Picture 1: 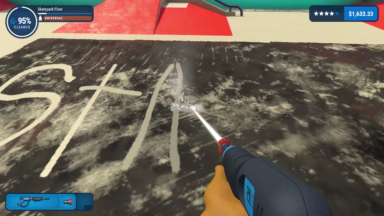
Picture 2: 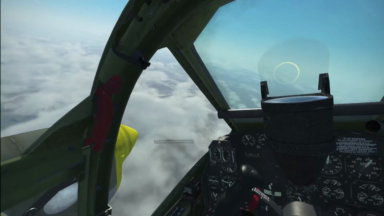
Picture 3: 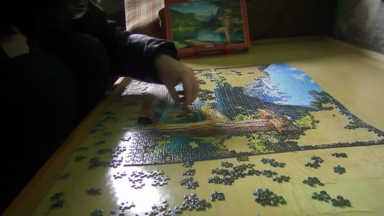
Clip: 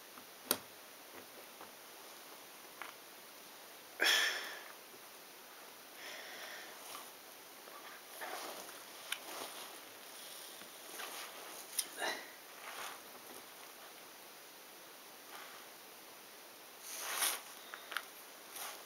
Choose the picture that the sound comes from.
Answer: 3